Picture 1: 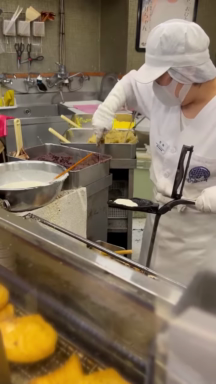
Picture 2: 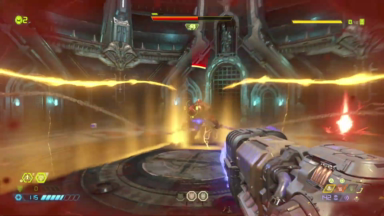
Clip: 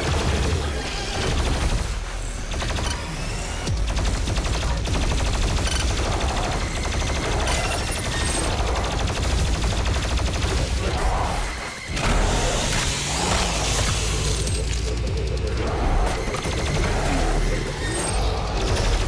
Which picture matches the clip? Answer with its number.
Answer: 2